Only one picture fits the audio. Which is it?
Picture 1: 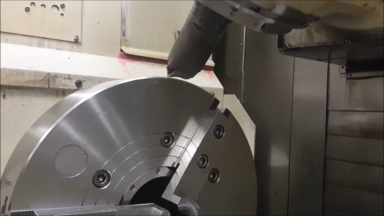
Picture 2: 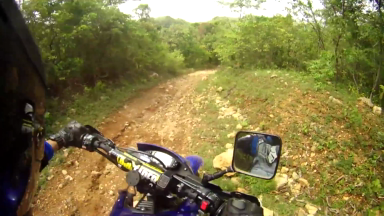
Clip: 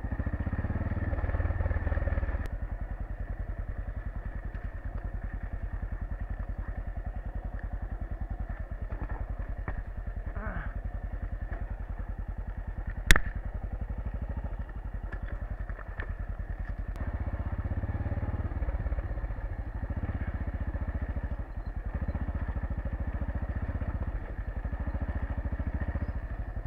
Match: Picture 2